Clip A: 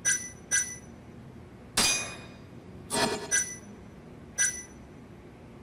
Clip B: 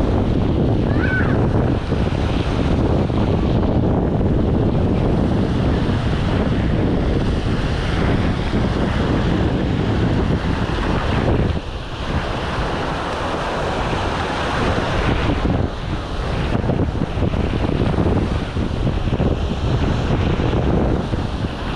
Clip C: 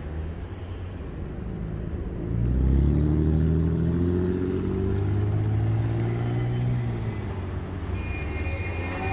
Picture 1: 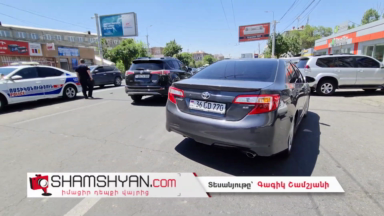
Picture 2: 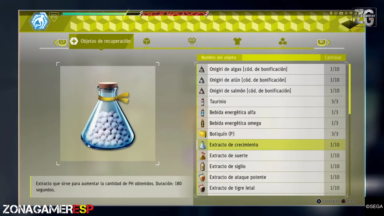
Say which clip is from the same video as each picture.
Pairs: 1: C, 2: A